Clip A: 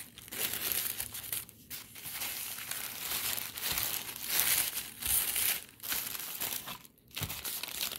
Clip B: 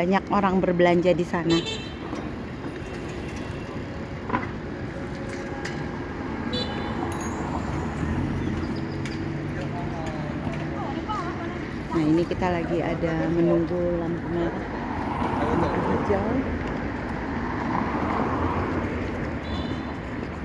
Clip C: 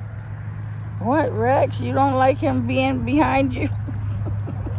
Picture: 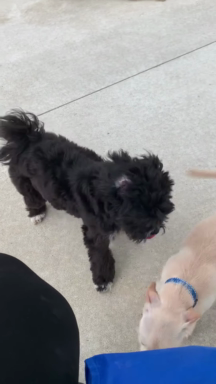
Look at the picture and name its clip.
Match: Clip C